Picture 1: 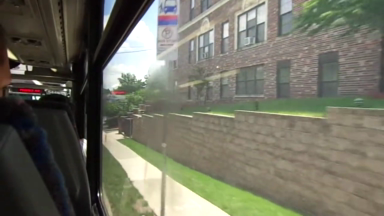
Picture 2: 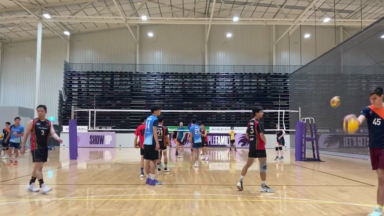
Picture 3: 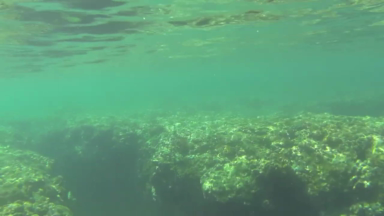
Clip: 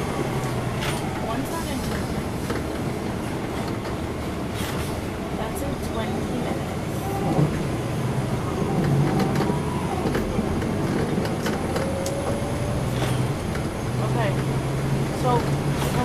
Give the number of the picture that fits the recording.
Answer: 1